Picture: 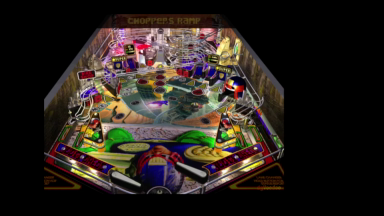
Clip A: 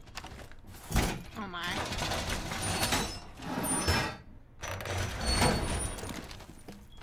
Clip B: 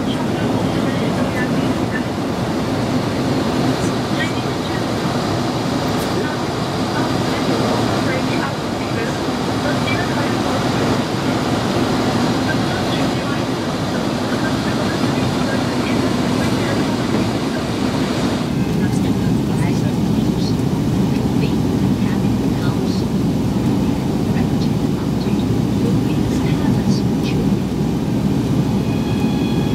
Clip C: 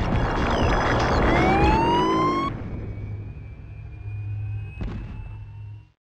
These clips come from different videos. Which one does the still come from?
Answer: C